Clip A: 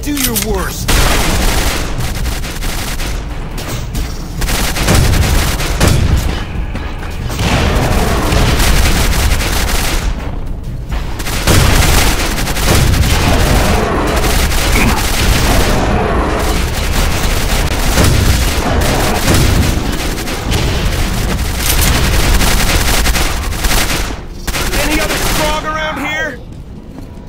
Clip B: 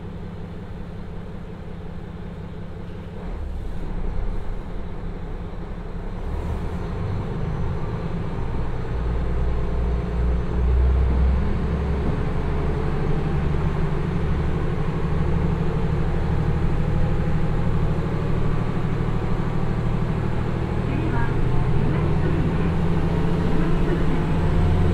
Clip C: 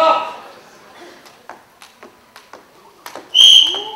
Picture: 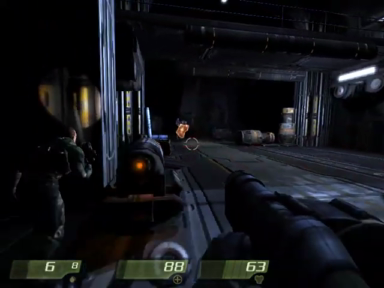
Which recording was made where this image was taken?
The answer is A